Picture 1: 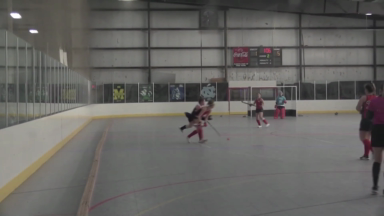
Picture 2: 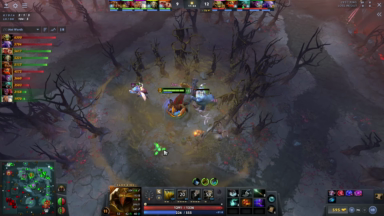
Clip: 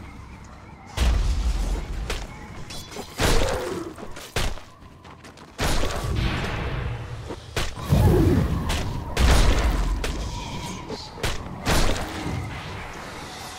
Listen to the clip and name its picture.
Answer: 2